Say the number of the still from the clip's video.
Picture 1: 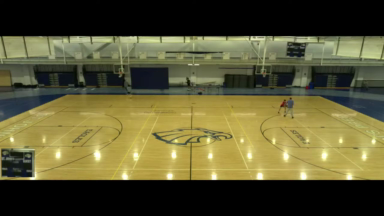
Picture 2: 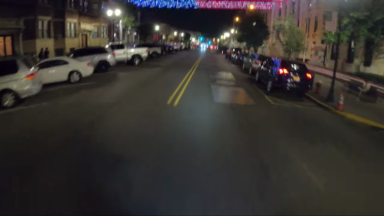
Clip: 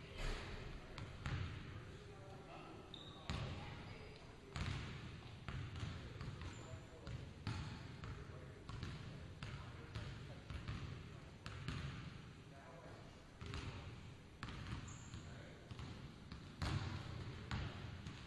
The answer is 1